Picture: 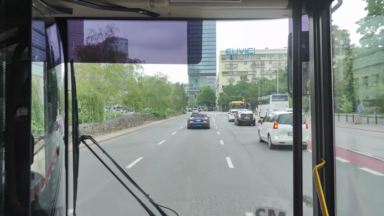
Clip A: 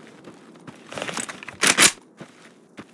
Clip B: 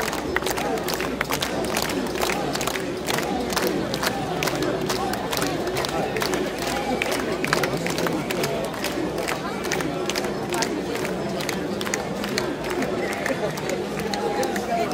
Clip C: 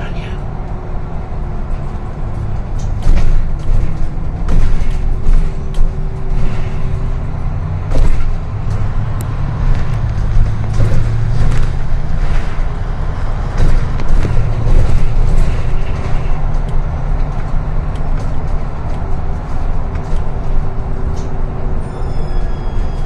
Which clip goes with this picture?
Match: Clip C